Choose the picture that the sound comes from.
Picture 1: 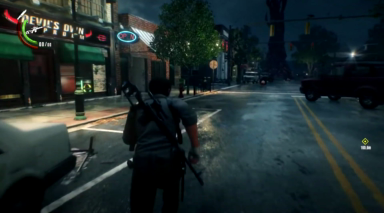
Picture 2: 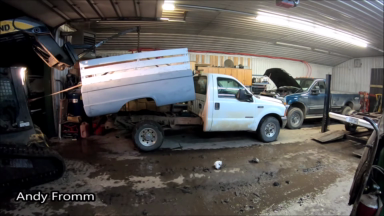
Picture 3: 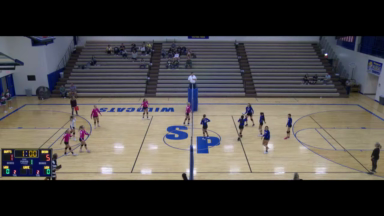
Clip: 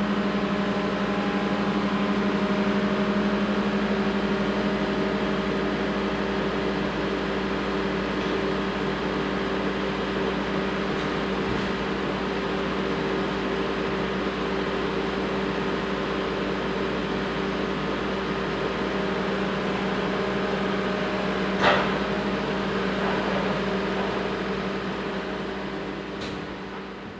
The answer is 2